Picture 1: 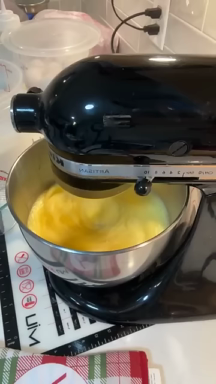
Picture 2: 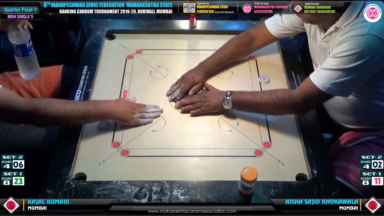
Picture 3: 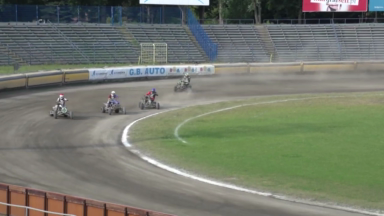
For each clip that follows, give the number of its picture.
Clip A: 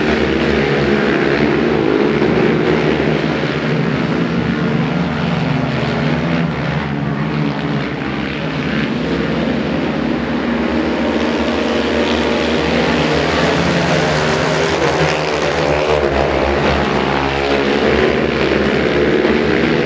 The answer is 3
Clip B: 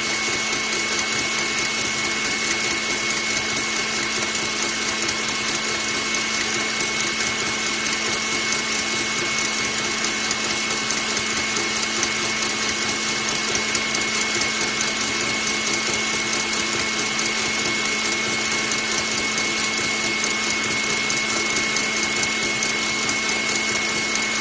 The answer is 1